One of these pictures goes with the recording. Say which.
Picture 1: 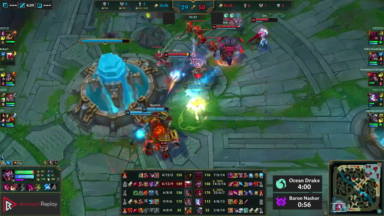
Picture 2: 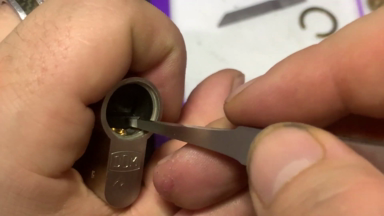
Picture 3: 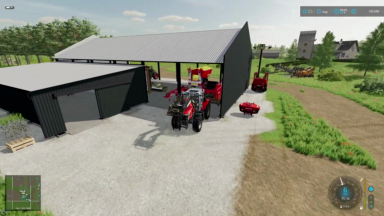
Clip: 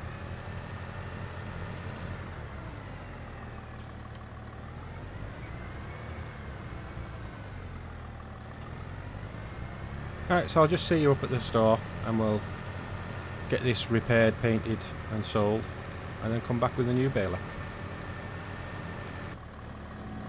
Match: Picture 3